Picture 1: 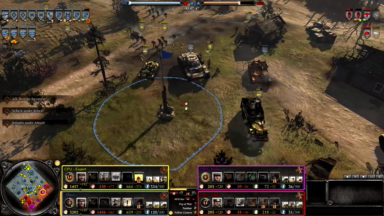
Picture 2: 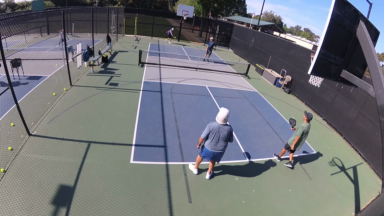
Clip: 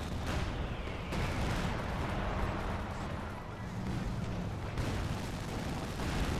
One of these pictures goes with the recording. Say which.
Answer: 1